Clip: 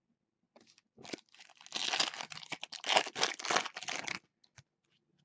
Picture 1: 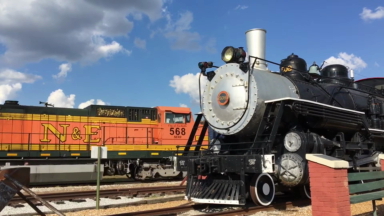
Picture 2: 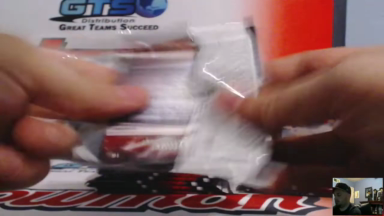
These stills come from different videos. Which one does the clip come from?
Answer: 2